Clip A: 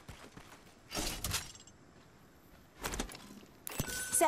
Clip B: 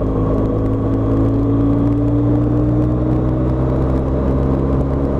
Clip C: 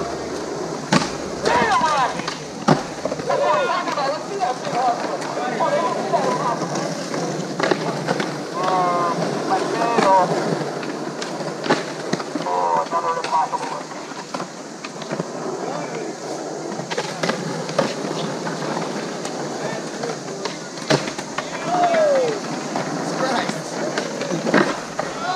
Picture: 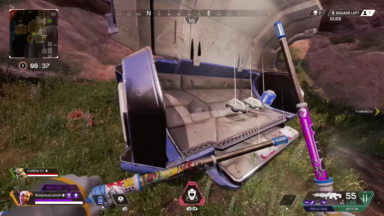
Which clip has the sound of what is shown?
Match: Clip A